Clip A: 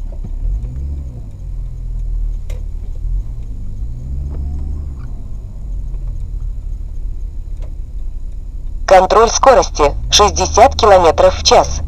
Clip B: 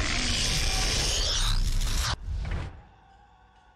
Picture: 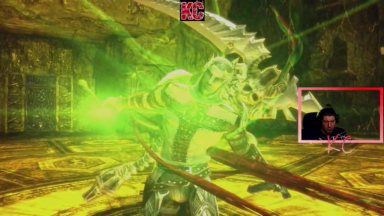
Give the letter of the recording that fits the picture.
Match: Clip B